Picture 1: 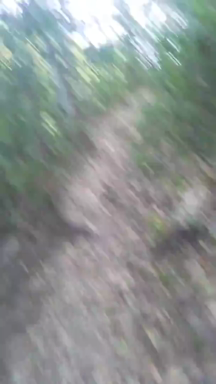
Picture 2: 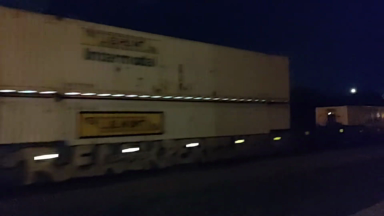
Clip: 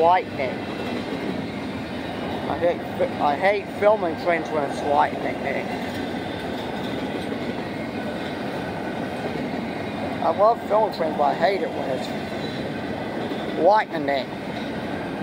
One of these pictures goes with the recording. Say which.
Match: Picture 2